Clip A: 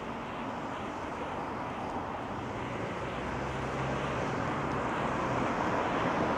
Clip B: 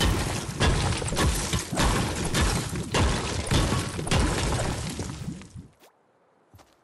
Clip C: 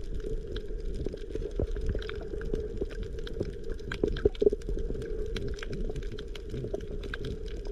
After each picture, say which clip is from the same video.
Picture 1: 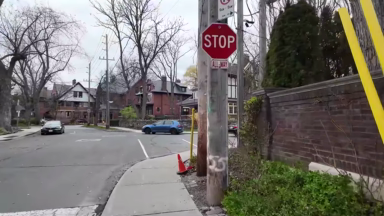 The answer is A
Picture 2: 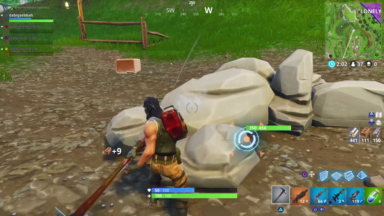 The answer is B